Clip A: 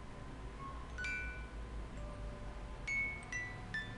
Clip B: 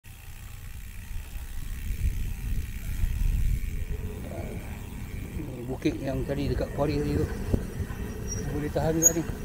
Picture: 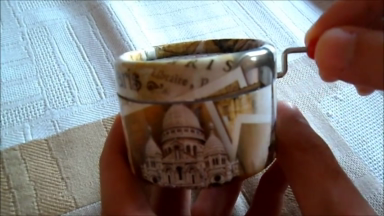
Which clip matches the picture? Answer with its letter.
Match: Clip A